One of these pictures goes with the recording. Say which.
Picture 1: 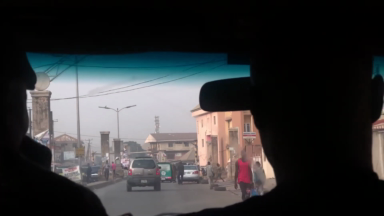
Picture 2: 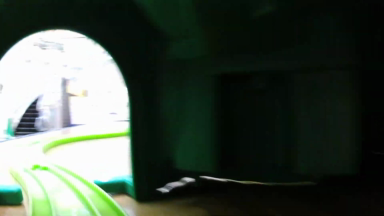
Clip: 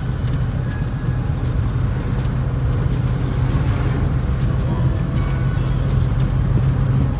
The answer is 1